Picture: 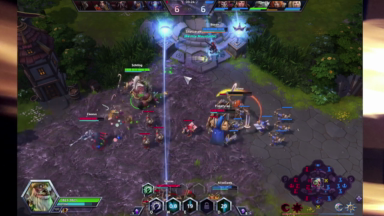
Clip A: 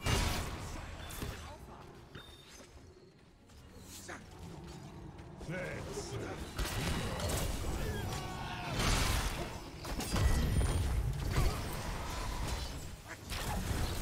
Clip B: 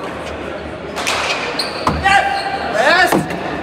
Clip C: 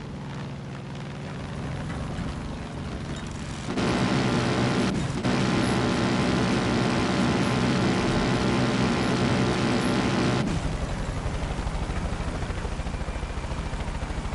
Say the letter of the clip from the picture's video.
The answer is A